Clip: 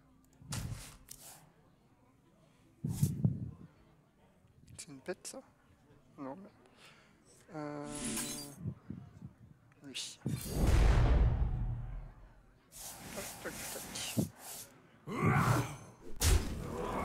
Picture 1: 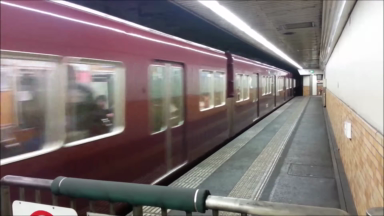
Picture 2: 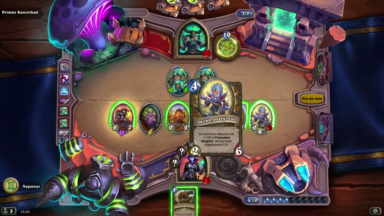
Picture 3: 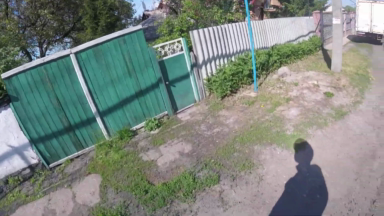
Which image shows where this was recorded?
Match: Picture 2